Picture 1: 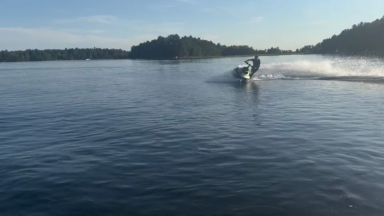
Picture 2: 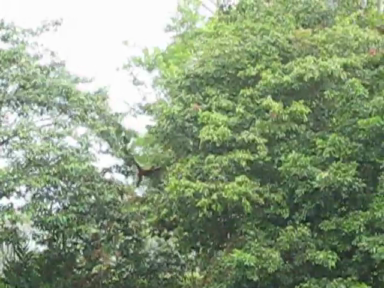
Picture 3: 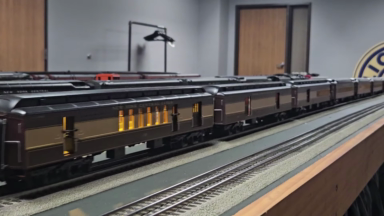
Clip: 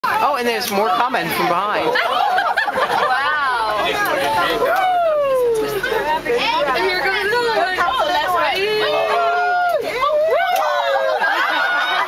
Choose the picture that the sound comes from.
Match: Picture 2